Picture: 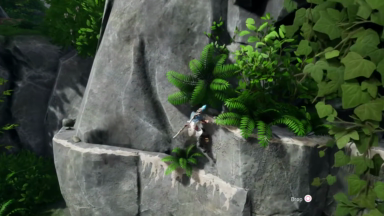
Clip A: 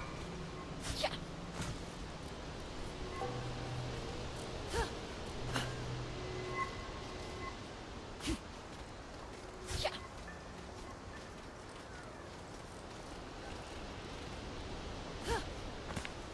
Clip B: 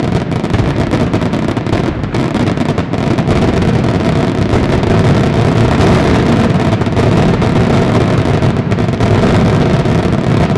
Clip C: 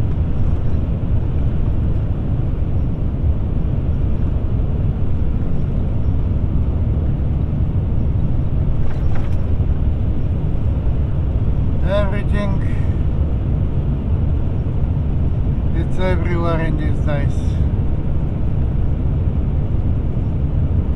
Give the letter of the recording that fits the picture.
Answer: A